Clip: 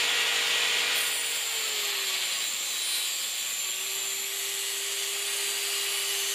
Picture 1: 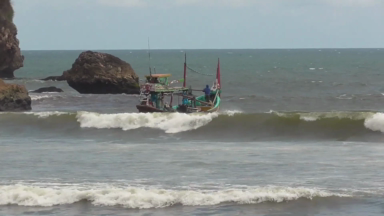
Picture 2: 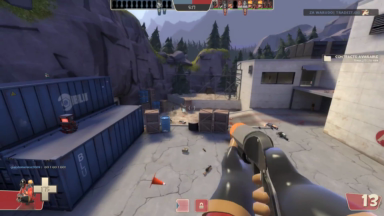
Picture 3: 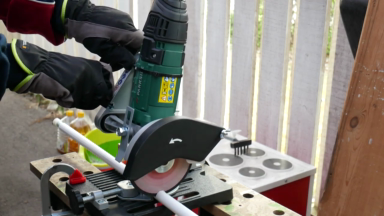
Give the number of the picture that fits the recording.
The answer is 3